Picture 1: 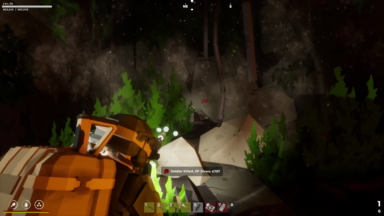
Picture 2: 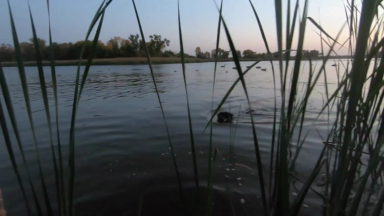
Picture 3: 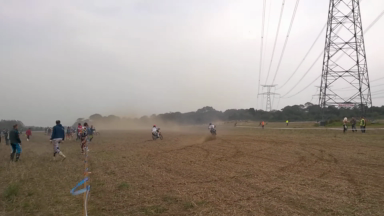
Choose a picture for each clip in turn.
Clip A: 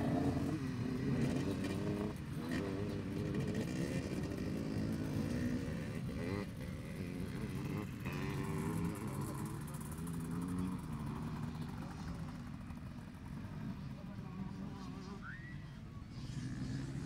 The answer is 3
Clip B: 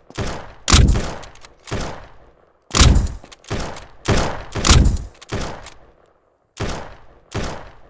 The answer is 1